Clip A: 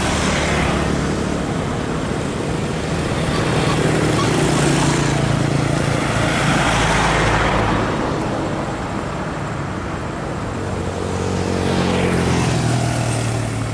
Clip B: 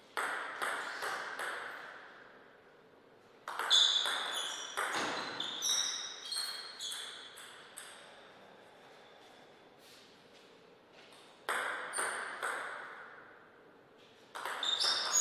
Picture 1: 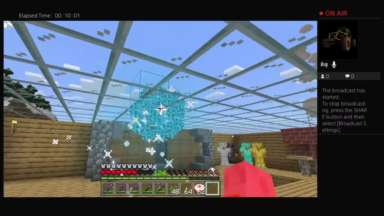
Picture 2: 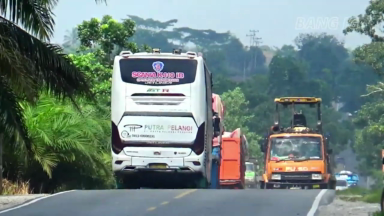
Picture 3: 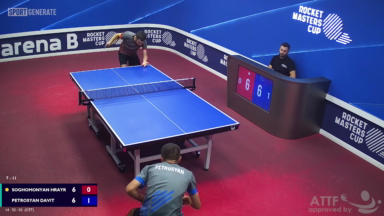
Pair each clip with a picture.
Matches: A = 2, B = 3